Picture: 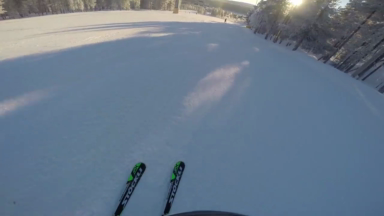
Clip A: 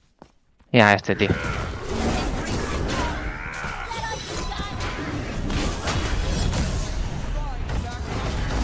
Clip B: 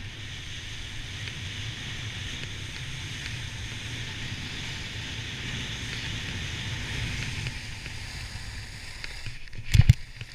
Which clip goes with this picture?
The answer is B